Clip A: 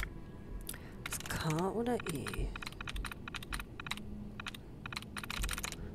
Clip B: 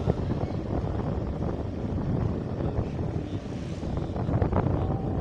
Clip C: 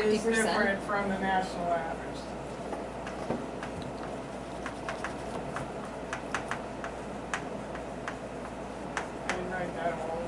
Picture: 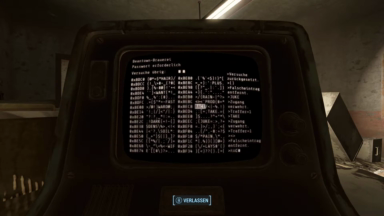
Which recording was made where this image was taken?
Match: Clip A